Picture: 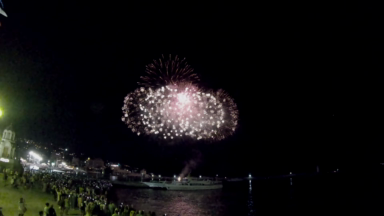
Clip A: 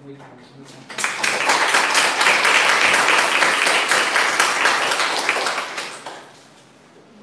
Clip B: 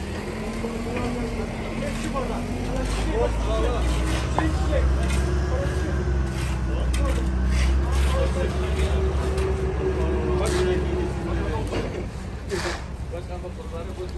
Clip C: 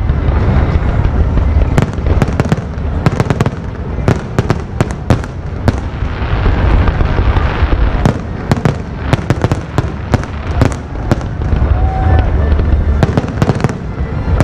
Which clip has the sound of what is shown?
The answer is C